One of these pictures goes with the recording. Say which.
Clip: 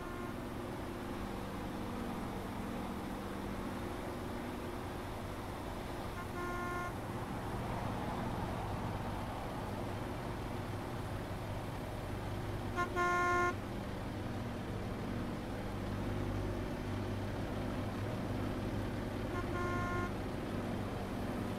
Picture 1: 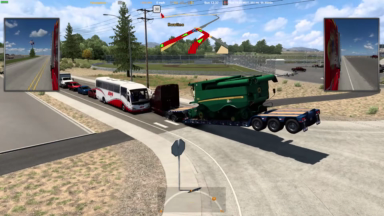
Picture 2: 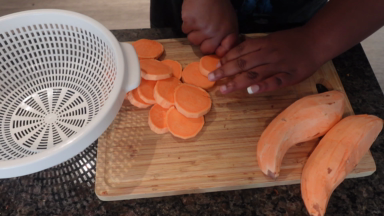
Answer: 1